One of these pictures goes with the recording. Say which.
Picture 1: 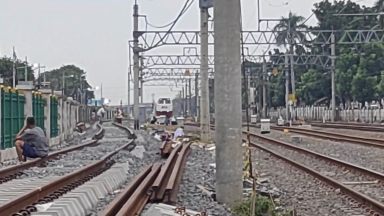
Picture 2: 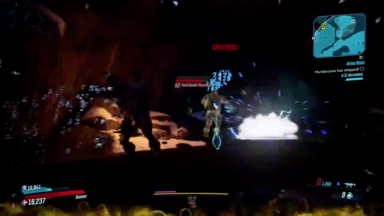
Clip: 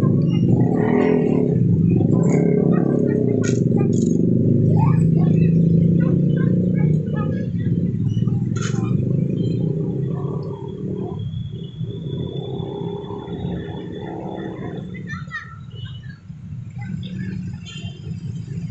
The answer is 1